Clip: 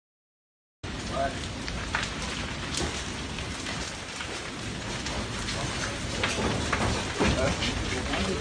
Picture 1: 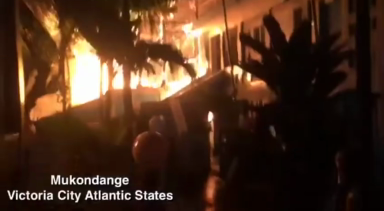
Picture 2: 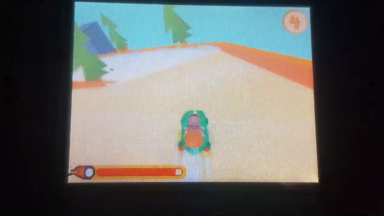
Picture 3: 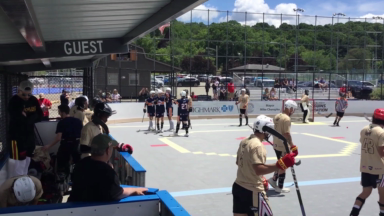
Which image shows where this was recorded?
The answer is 1